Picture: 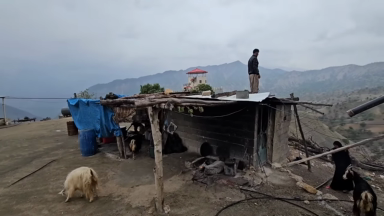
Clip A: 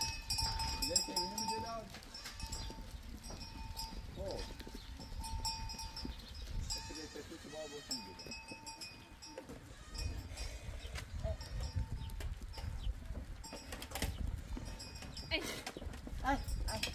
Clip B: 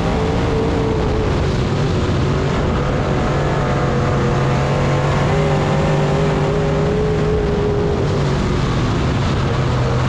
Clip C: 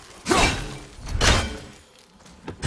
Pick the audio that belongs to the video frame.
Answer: A